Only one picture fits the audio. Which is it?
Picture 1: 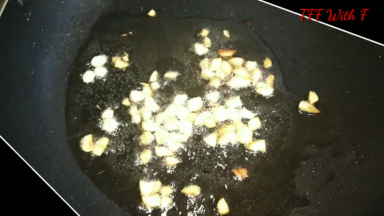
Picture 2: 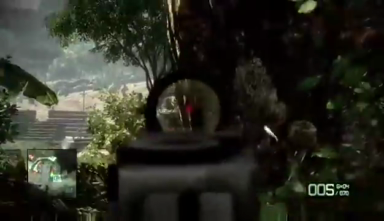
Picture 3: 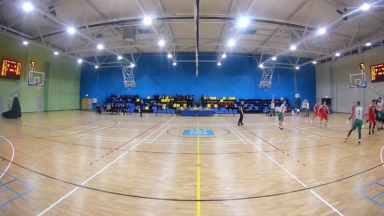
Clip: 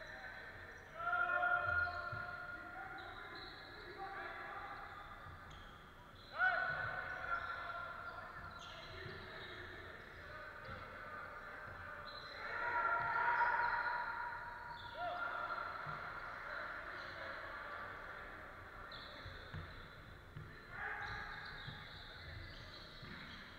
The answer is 3